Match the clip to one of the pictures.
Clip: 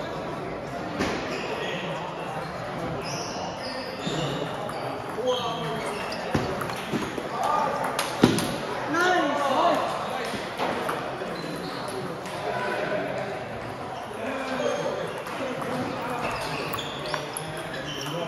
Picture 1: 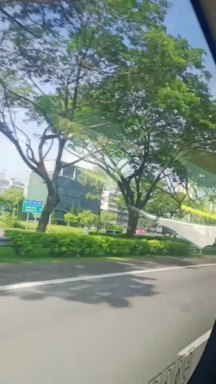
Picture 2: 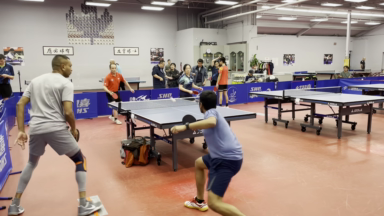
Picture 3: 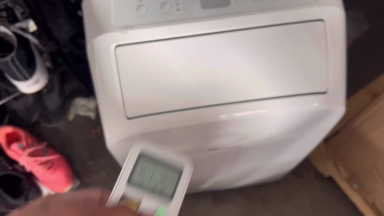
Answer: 2